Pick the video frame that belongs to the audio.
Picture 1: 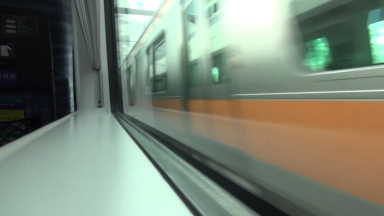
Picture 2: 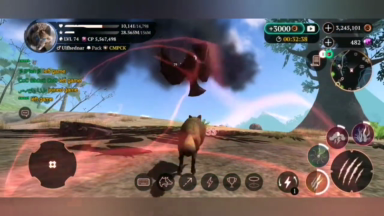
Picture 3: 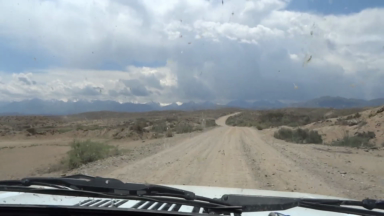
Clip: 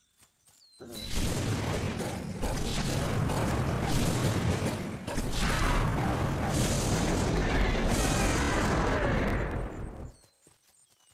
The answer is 2